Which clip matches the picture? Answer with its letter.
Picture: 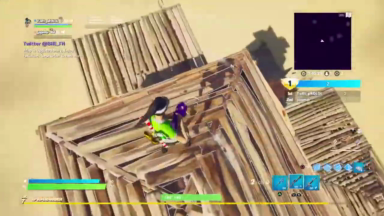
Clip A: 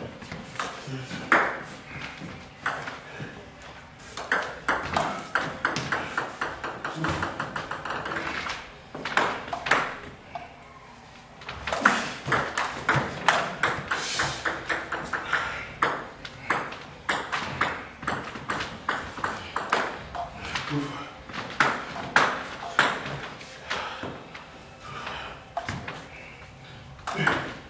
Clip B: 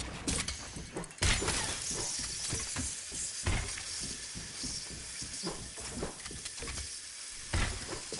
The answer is B